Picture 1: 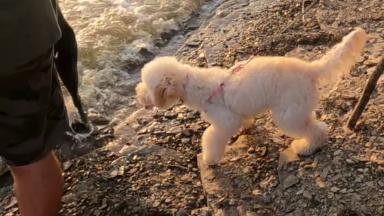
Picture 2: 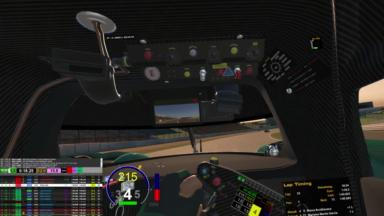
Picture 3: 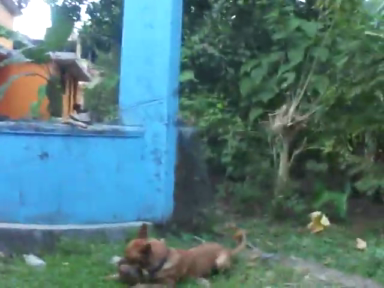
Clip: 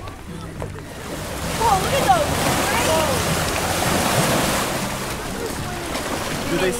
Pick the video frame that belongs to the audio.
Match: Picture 1